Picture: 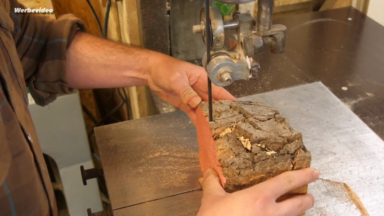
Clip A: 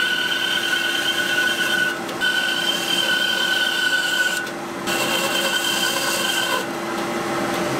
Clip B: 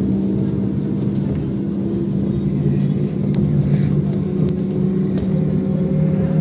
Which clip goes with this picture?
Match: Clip A